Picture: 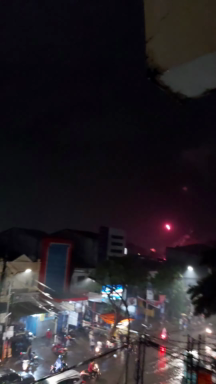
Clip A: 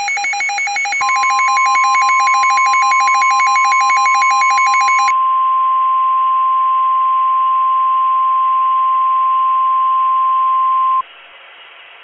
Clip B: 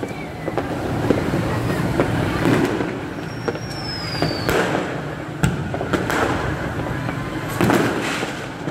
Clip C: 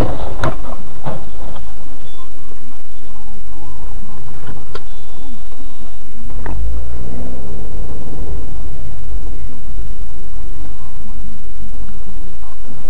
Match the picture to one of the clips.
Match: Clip B